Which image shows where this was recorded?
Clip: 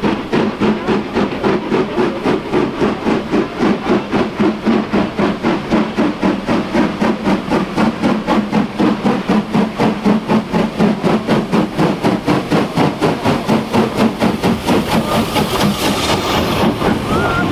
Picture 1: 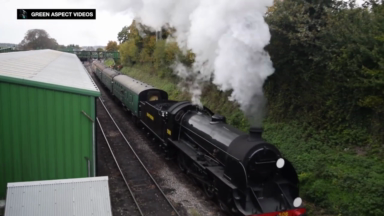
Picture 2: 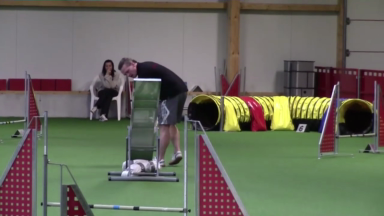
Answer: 1